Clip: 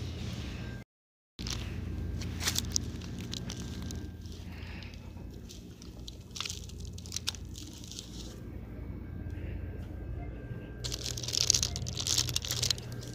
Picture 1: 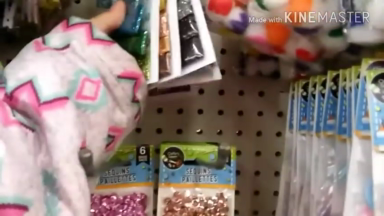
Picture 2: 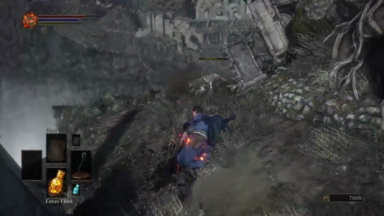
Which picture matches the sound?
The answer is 1